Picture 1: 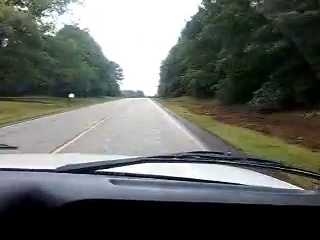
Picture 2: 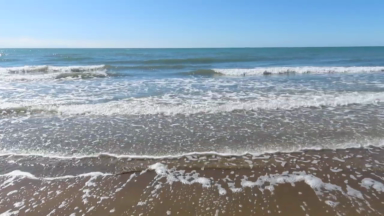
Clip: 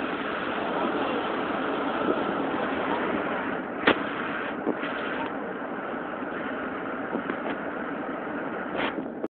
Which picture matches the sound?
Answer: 1